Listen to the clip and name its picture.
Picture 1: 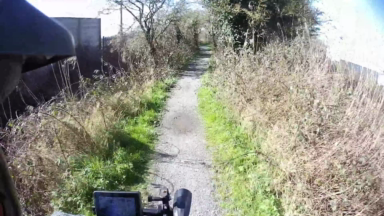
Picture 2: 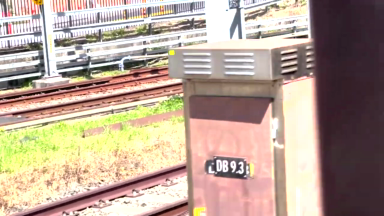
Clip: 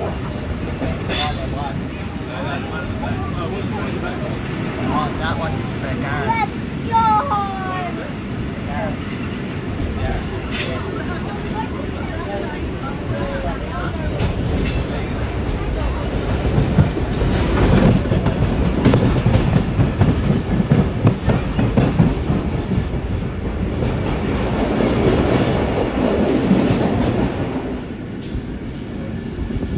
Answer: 2